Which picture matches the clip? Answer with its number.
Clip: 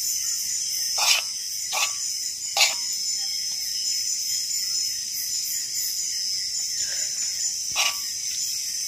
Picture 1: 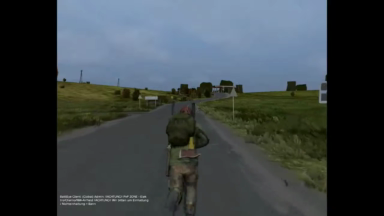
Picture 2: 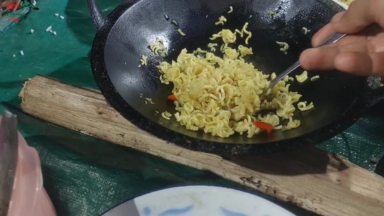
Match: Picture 2